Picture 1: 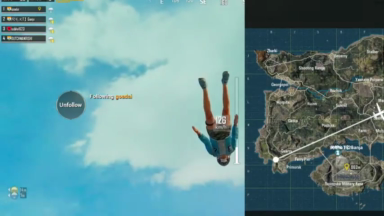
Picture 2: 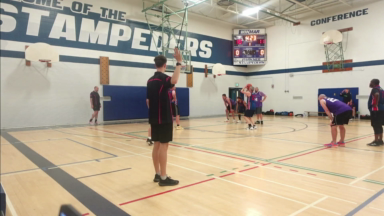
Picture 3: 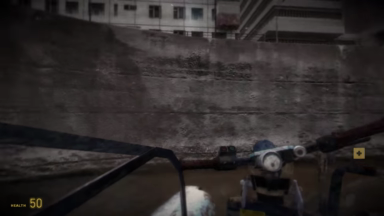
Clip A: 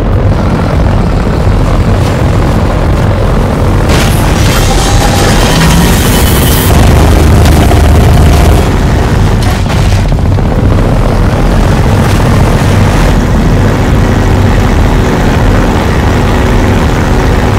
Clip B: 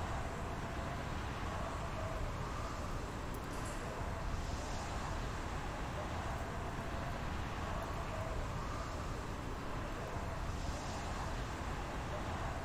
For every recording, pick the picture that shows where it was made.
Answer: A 3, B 1